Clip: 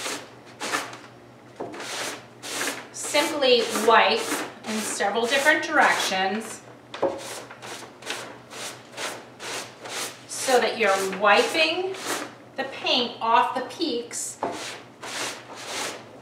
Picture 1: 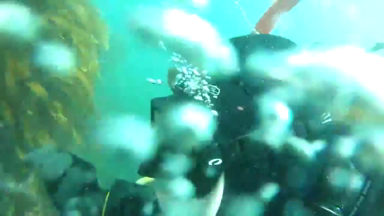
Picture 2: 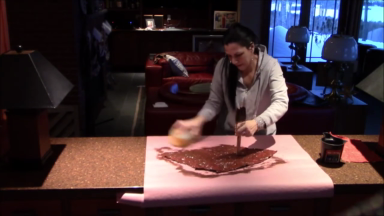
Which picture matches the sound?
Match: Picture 2